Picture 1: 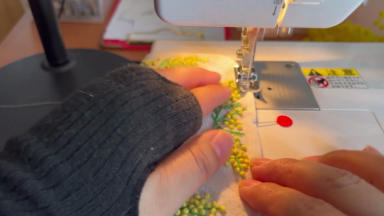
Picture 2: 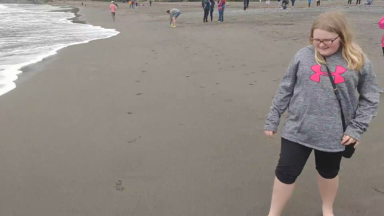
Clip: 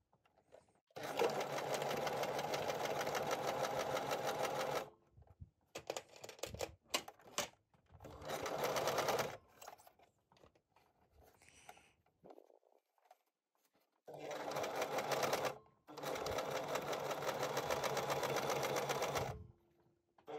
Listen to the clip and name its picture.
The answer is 1